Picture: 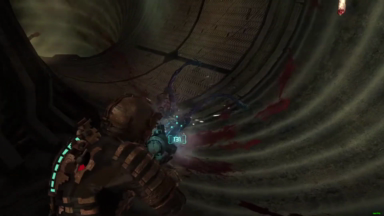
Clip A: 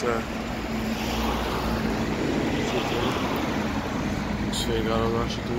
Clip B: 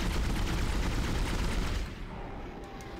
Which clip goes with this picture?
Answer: B